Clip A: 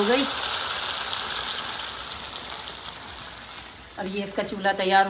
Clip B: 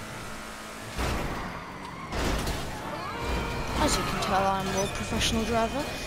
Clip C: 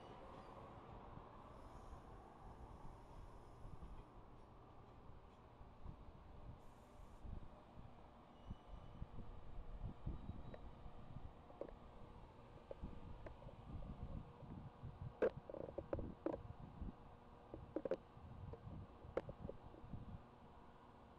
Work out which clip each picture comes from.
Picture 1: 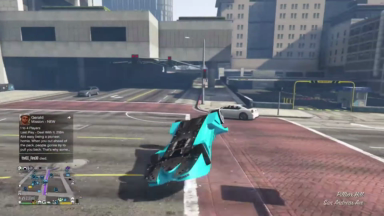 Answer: B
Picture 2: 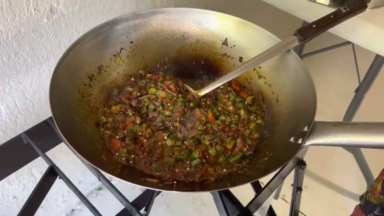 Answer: A